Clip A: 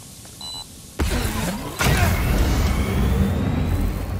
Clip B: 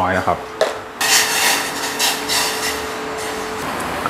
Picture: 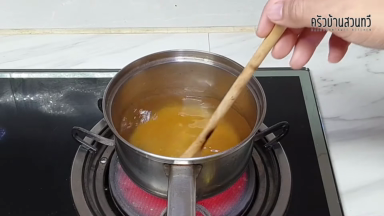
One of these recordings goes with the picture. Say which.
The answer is B